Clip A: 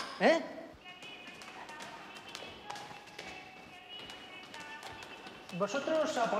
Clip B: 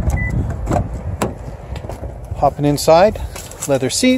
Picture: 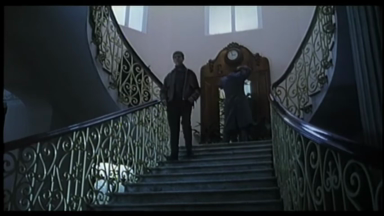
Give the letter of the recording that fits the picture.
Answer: A